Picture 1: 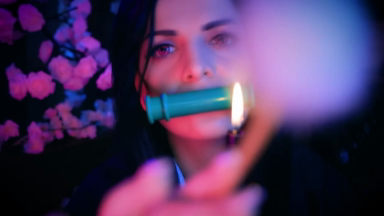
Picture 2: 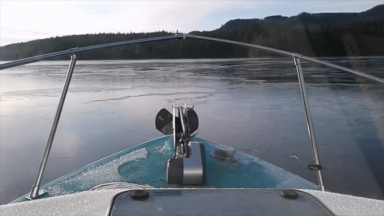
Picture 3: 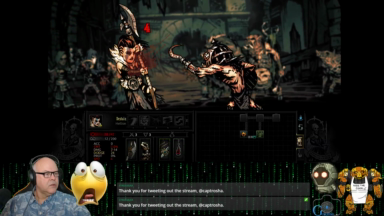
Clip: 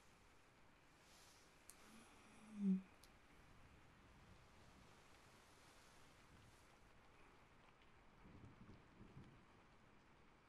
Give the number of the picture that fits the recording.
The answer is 1